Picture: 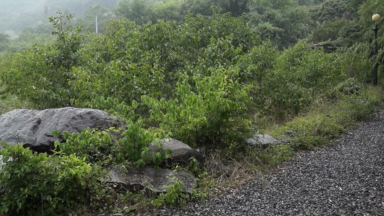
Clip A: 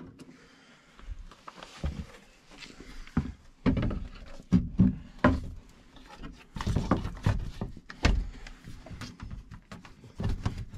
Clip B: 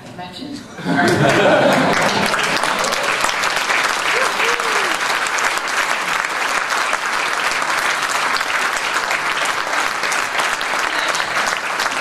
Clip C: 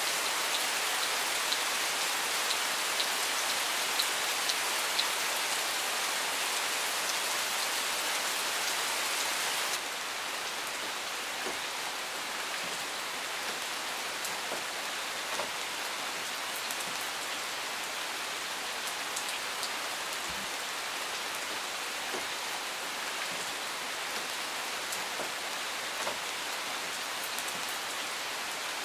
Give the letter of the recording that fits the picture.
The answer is C